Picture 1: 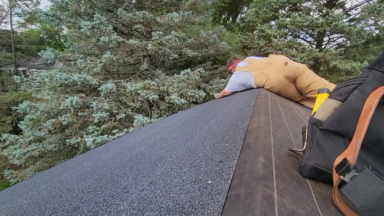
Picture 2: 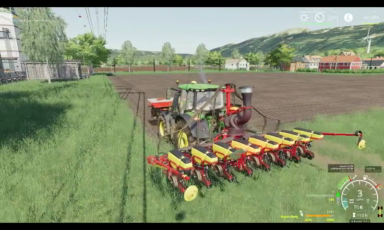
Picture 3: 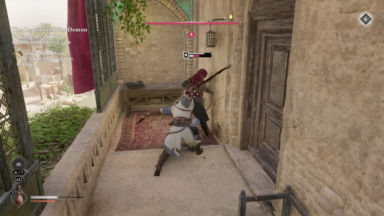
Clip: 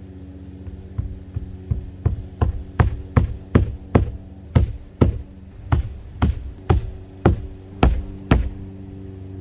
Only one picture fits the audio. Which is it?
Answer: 1